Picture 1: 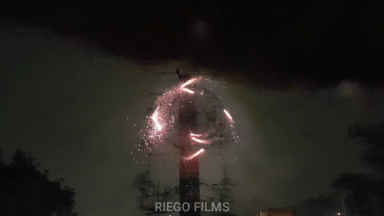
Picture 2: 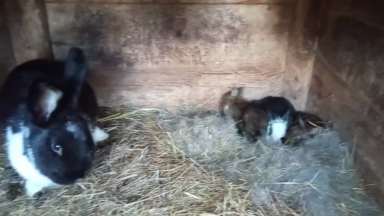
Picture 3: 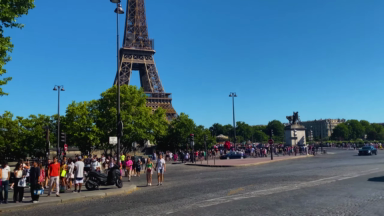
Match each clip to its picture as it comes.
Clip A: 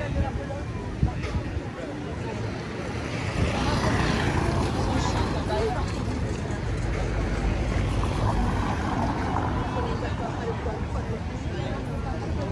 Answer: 3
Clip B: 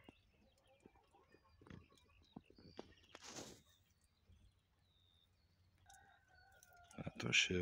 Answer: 2